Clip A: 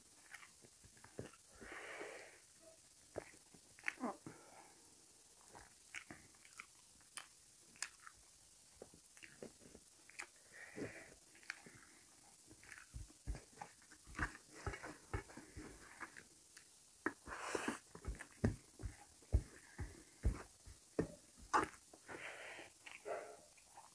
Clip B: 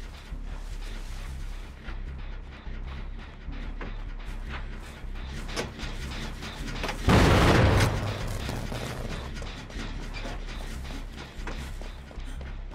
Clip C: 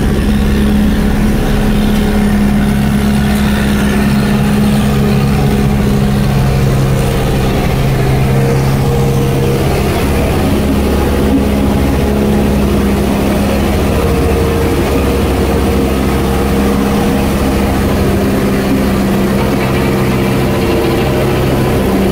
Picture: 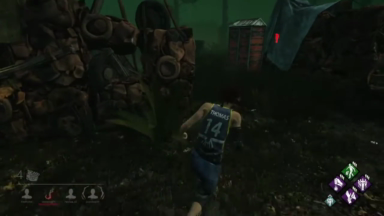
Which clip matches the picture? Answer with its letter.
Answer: B